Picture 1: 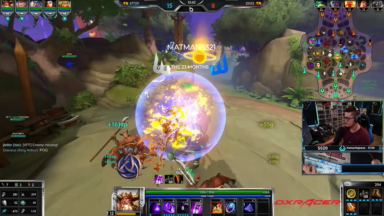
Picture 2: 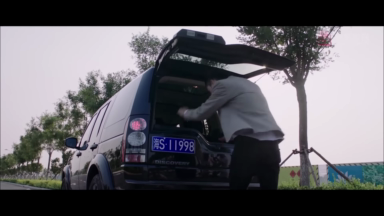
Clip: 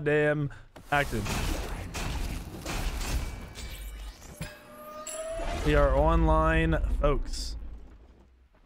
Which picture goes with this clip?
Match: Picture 1